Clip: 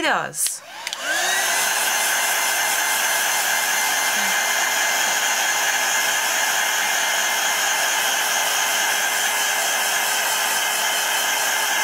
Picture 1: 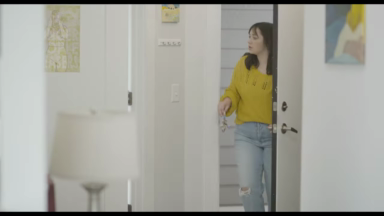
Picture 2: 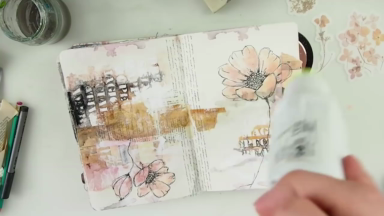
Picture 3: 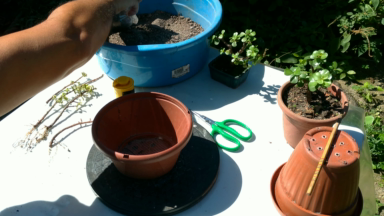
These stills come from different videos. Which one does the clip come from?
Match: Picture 2